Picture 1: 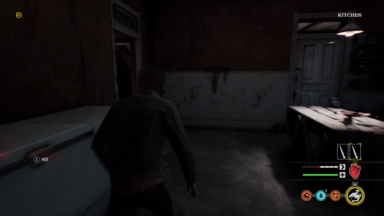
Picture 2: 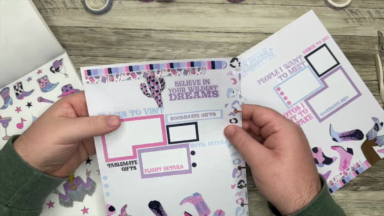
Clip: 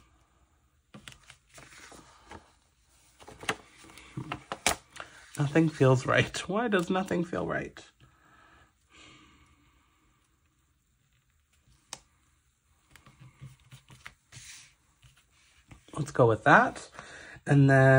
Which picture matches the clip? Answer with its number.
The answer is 2